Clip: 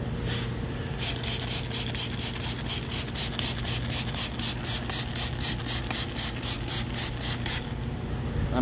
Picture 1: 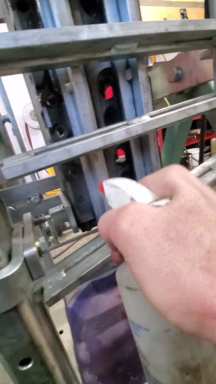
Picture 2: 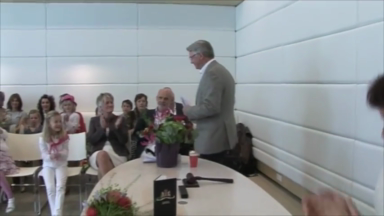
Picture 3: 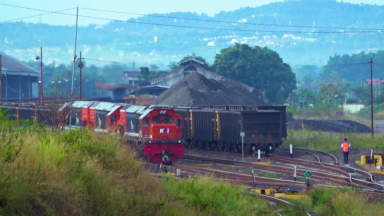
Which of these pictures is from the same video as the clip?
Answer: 1